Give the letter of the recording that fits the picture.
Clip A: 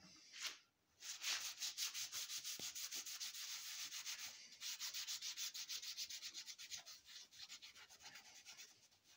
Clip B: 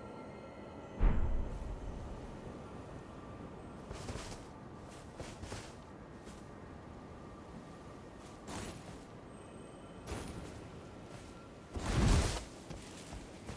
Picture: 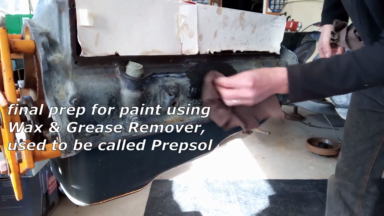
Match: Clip A